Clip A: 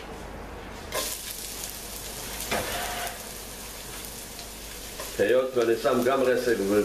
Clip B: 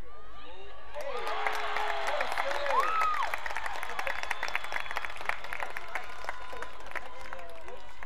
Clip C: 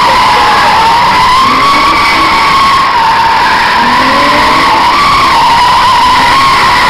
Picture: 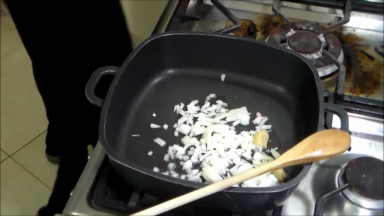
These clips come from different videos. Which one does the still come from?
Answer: A